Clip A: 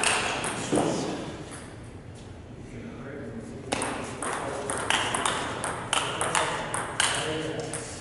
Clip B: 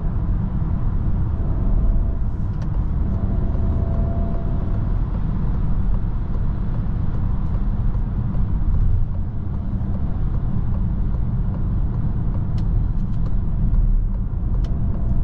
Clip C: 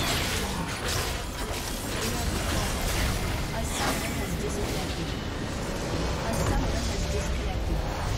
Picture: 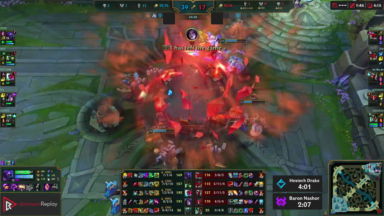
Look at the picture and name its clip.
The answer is C